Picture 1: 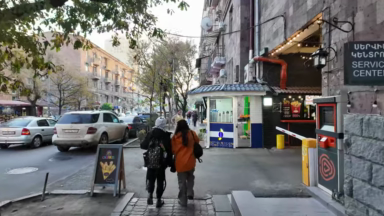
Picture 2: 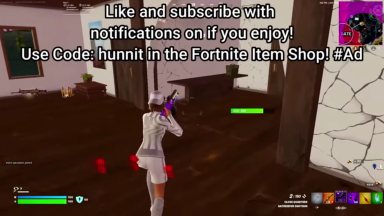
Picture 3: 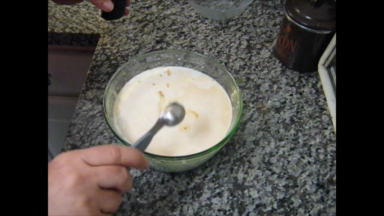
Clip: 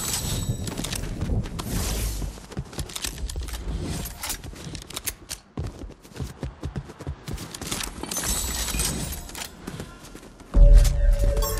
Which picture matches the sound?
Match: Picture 2